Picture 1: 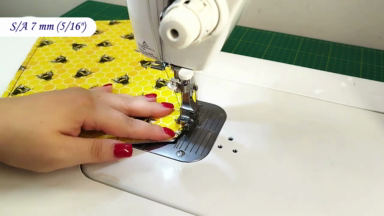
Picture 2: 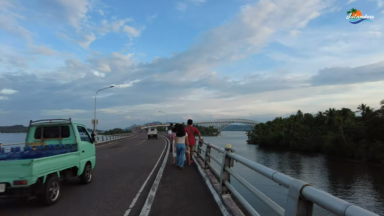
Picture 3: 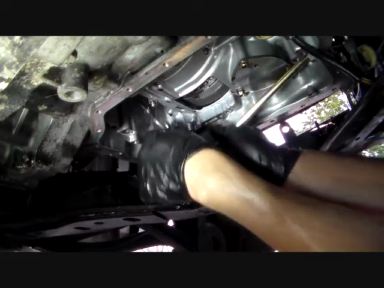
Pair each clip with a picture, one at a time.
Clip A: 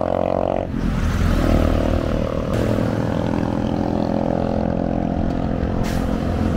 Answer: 2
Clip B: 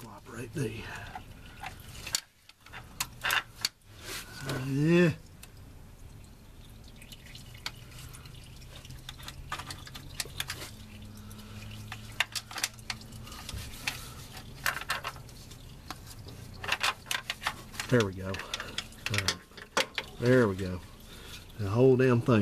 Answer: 3